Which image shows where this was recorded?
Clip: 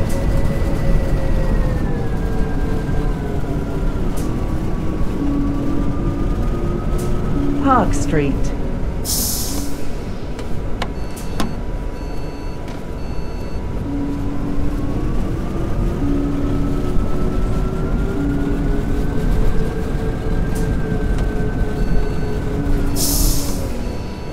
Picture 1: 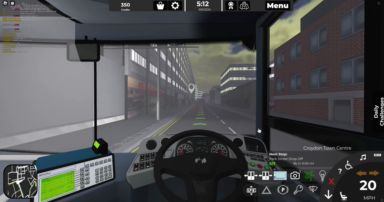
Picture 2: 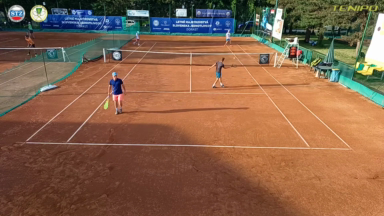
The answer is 1